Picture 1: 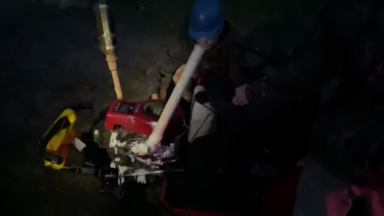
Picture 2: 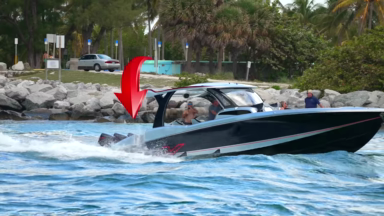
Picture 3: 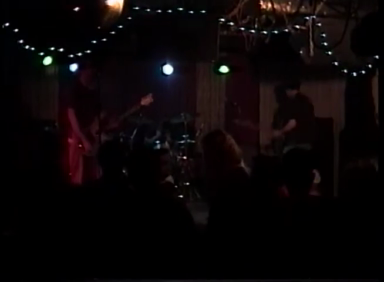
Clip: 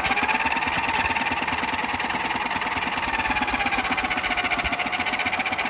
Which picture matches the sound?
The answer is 1